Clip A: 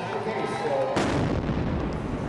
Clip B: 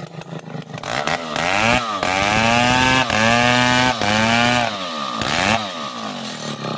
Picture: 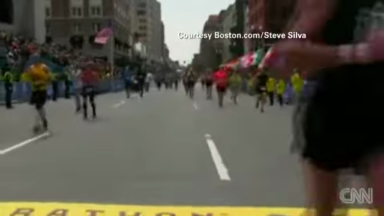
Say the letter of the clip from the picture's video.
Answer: A